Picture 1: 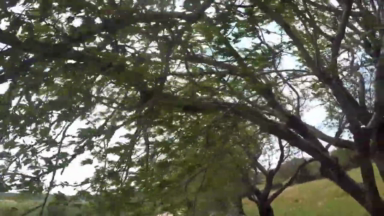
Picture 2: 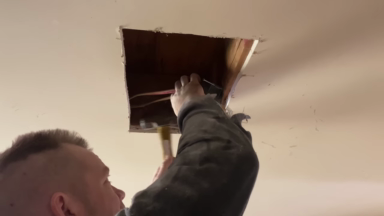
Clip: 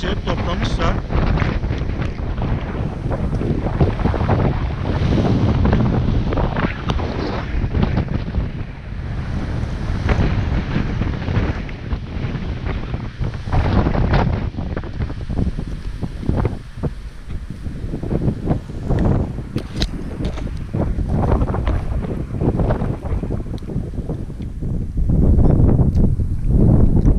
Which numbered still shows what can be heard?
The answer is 1